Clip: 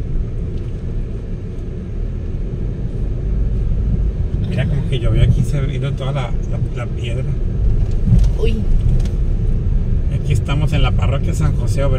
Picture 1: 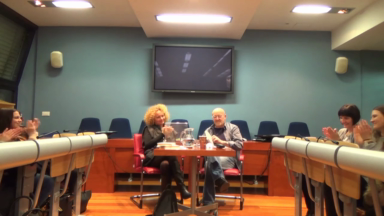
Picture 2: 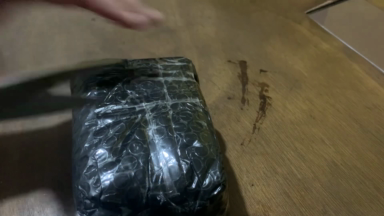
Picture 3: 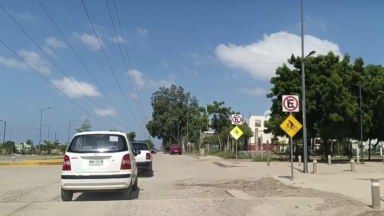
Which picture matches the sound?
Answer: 3